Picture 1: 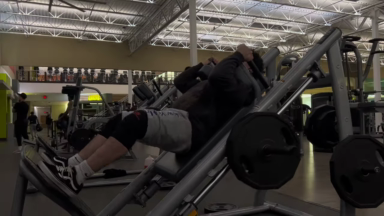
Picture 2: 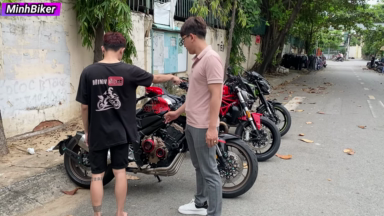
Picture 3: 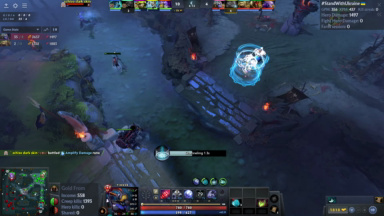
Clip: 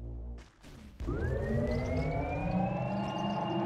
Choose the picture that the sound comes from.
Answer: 3